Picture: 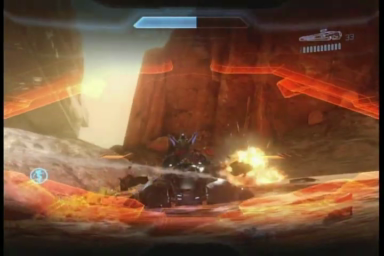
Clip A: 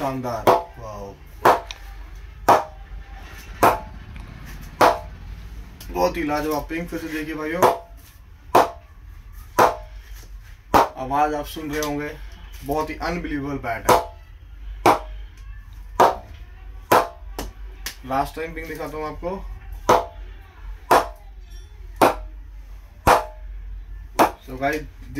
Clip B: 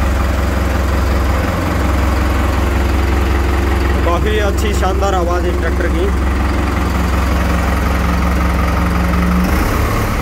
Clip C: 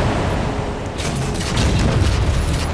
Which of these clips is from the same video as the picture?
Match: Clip C